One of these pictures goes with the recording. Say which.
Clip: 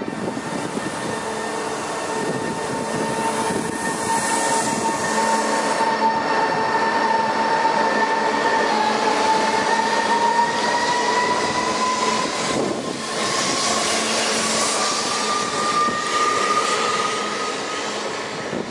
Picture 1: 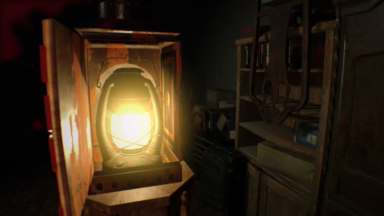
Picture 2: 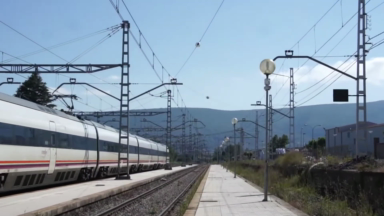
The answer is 2